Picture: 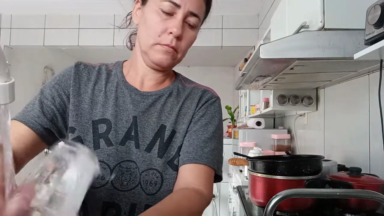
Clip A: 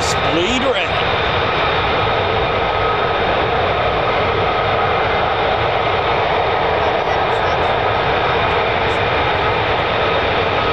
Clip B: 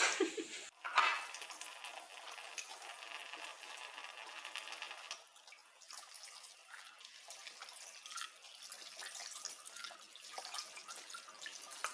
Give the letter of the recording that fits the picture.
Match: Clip B